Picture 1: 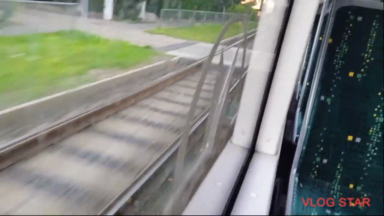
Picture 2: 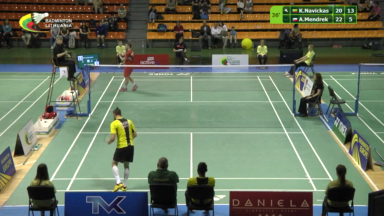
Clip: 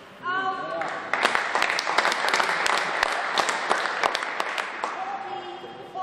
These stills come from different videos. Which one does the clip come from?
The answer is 2